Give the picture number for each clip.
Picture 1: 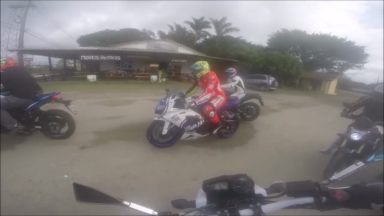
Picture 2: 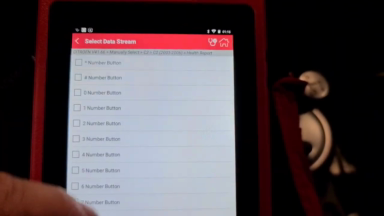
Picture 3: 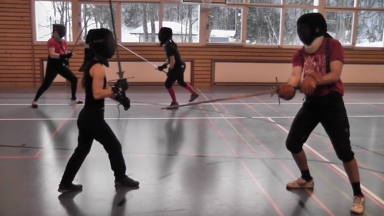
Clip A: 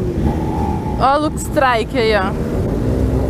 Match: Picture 1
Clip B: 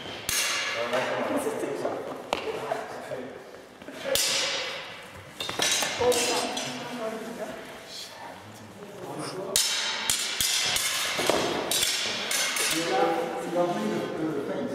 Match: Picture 3